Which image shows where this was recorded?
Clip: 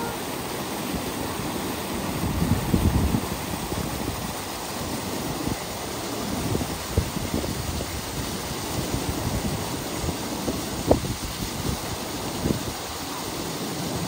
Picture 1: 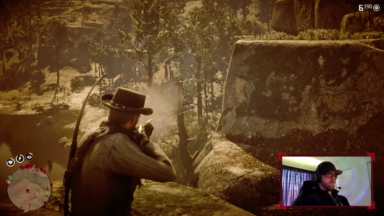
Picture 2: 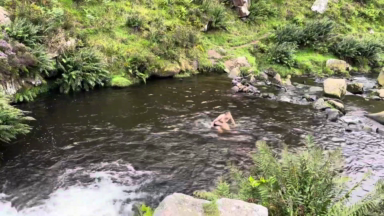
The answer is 2